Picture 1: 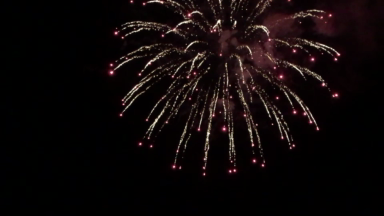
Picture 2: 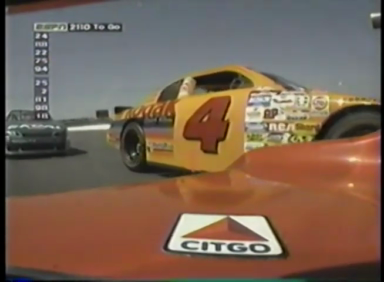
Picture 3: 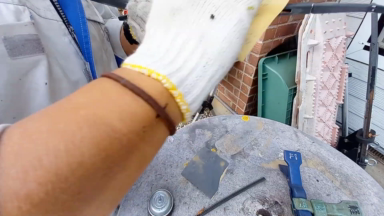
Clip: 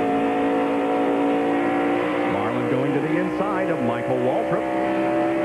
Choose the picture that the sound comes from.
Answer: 2